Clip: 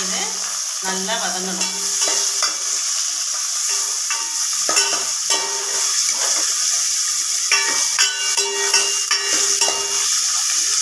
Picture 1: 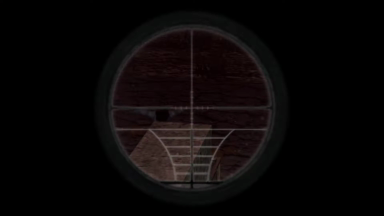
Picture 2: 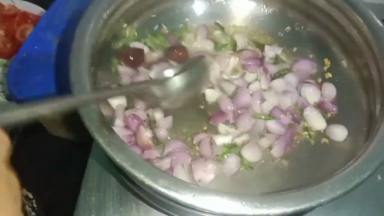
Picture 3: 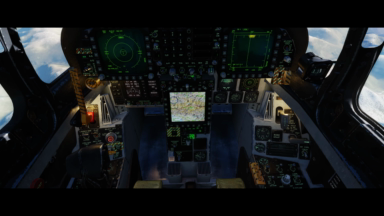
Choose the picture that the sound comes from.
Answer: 2